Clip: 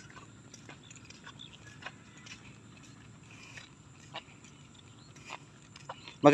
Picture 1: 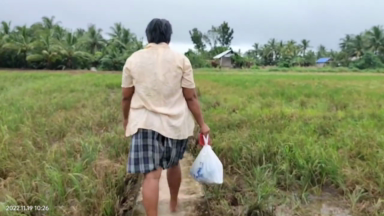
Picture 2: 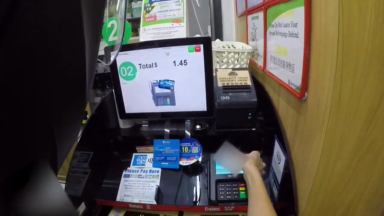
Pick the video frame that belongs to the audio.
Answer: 1